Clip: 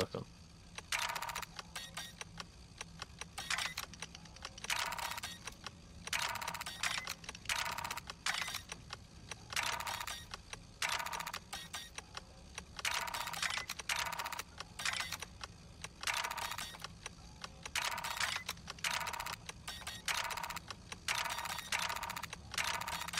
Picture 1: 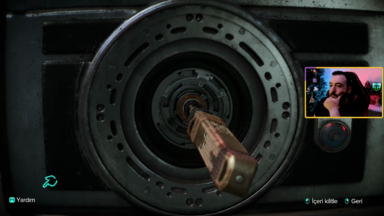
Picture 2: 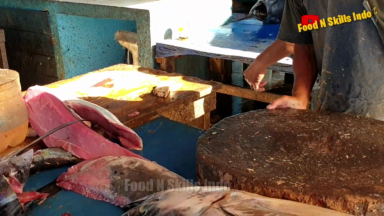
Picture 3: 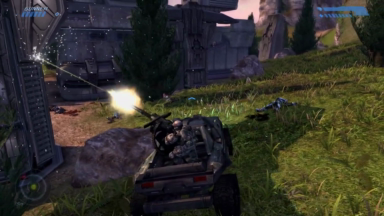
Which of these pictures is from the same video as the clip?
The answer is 1